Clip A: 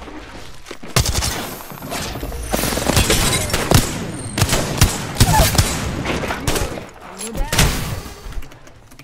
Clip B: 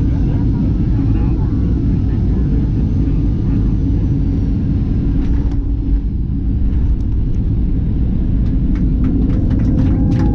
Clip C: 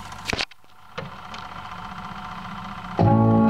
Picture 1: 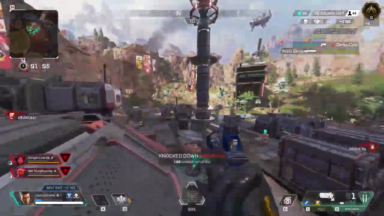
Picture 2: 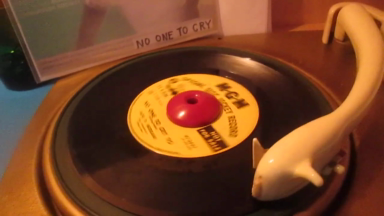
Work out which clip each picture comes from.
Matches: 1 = A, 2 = C